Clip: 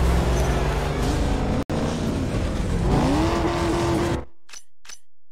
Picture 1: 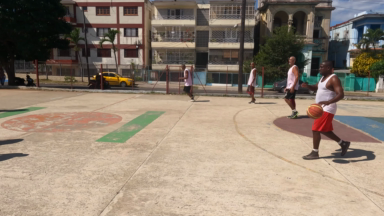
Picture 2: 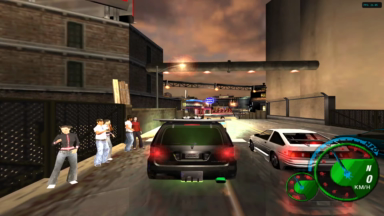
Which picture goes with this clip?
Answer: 2